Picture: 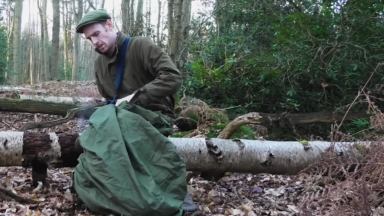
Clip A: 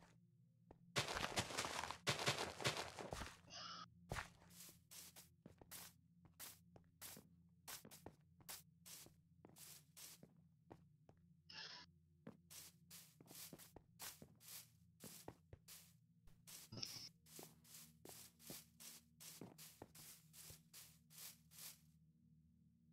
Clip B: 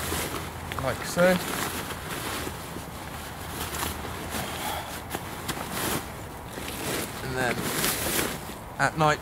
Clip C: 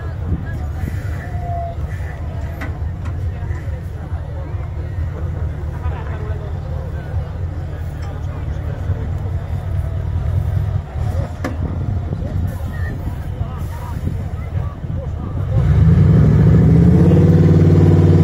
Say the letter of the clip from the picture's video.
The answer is B